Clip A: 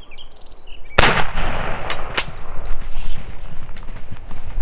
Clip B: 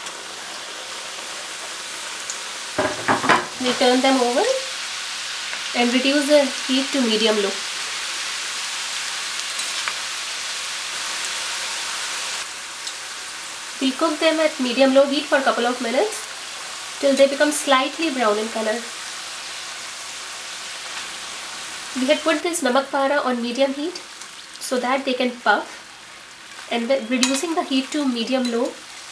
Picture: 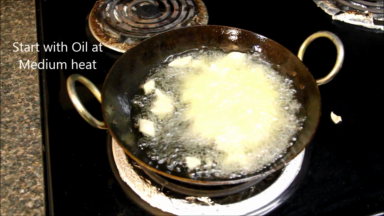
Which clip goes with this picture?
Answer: B